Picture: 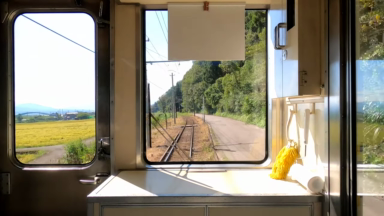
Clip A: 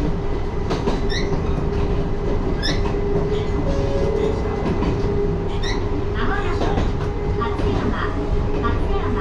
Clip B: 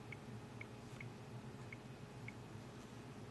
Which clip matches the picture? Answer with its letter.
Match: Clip A